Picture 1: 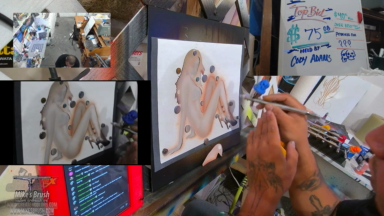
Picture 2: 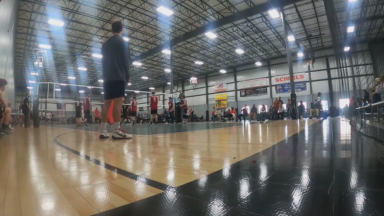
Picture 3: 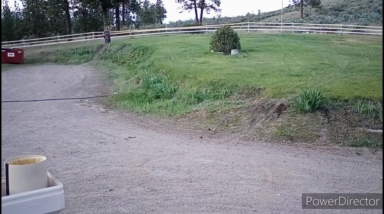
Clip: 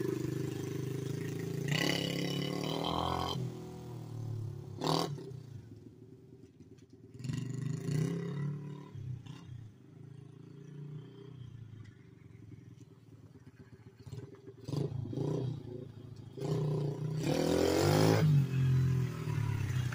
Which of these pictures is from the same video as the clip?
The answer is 3